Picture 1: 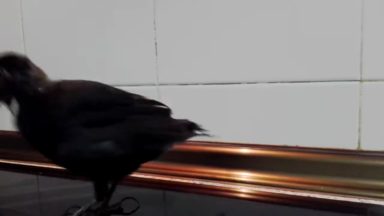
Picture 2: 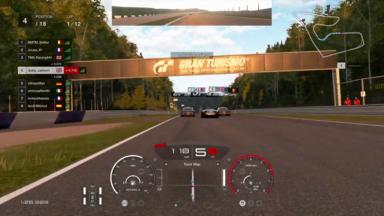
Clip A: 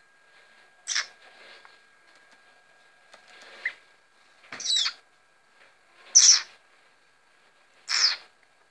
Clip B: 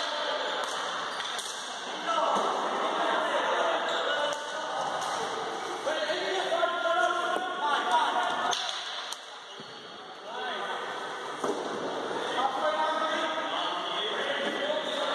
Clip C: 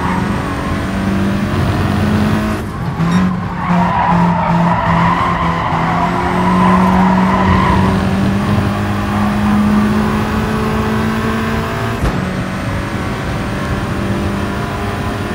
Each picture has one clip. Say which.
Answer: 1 A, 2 C